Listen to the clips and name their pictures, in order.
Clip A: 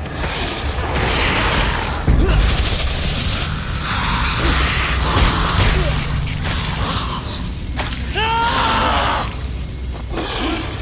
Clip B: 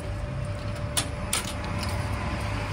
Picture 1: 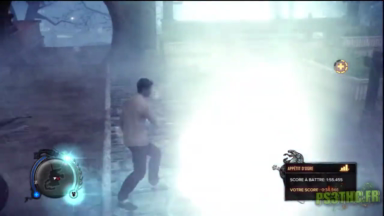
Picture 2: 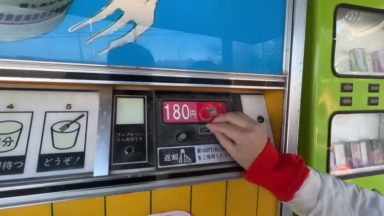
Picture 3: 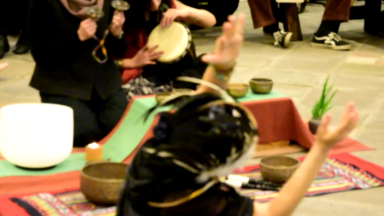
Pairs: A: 1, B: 2